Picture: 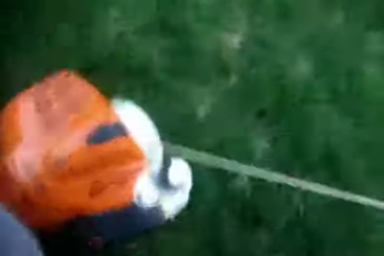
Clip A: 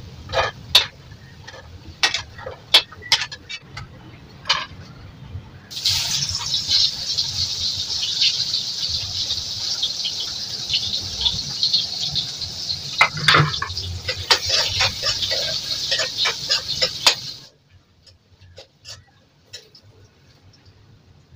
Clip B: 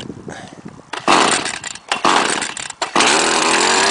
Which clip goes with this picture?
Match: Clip B